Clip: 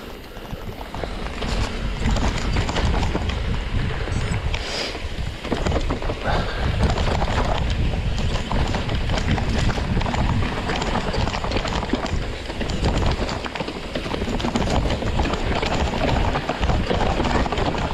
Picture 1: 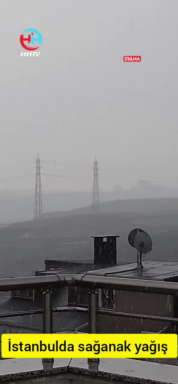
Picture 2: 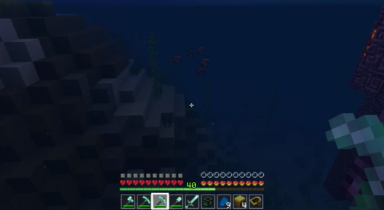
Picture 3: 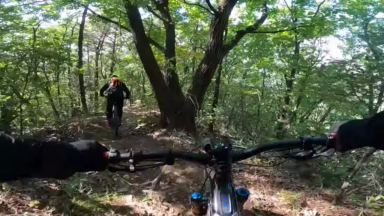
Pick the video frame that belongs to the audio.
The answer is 3